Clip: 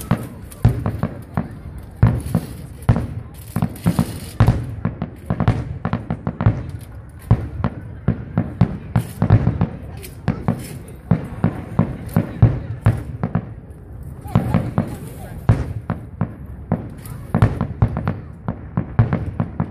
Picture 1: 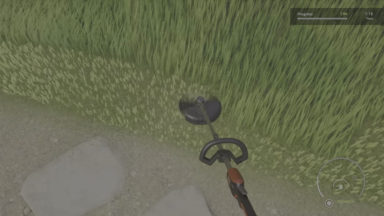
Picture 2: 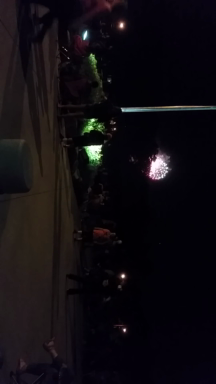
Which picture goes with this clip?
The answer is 2